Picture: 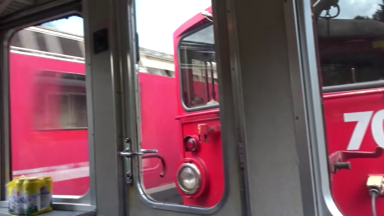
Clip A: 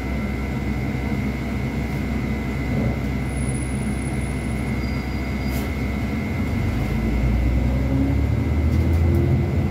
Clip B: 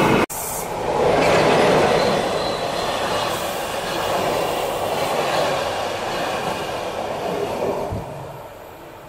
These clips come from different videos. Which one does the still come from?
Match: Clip B